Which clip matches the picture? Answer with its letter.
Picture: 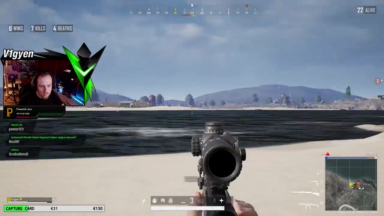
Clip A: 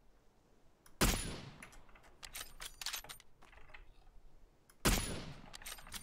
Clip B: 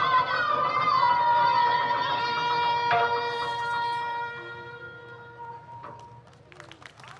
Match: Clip A